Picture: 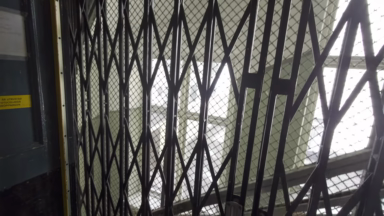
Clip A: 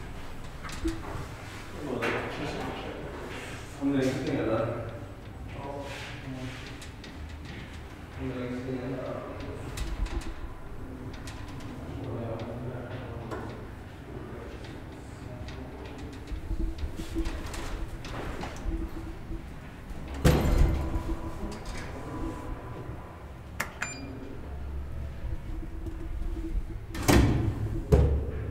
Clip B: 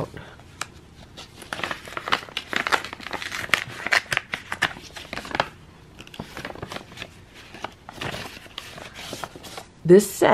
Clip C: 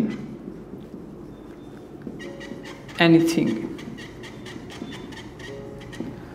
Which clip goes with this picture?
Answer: A